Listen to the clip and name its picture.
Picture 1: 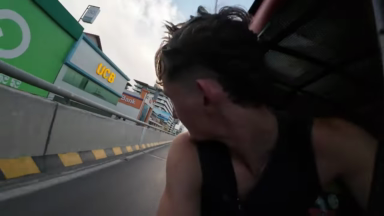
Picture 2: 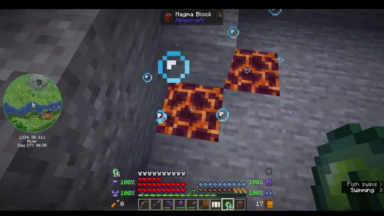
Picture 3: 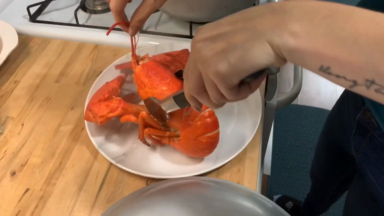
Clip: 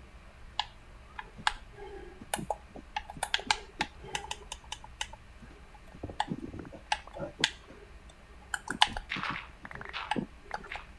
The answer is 2